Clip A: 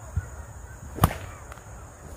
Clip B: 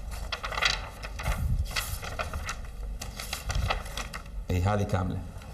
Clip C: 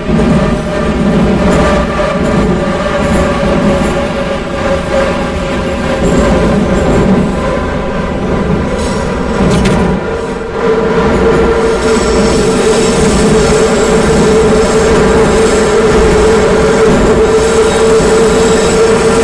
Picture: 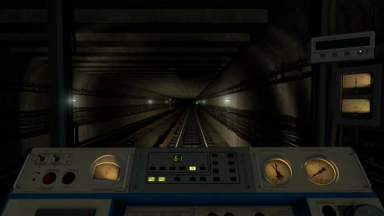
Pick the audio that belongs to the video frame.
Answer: C